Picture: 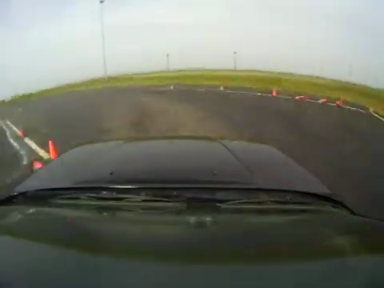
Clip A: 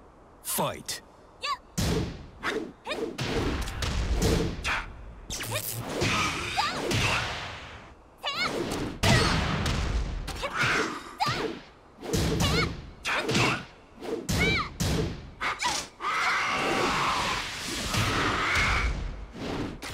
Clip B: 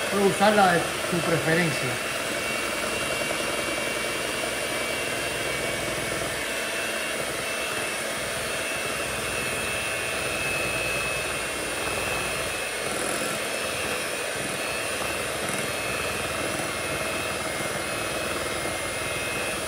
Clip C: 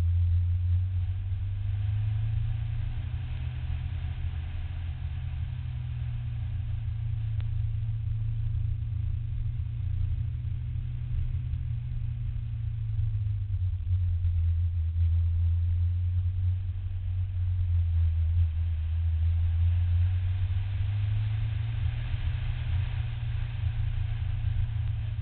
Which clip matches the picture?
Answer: C